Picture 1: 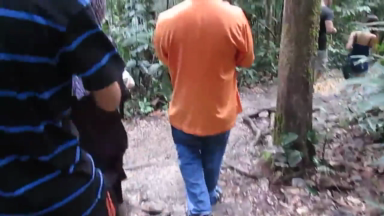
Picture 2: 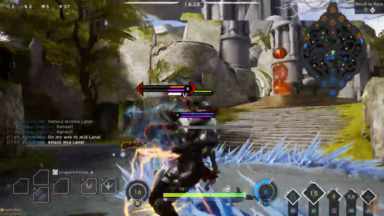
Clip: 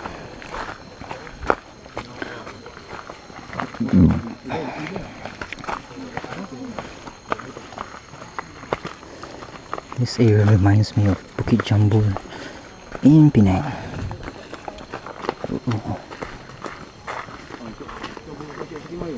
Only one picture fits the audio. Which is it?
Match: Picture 1